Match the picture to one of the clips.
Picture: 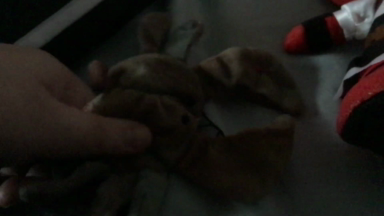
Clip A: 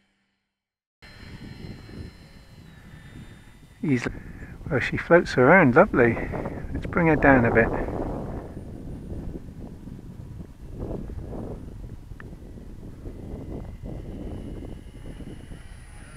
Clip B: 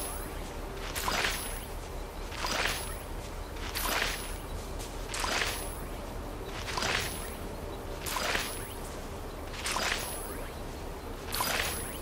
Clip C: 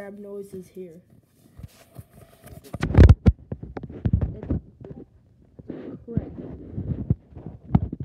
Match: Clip C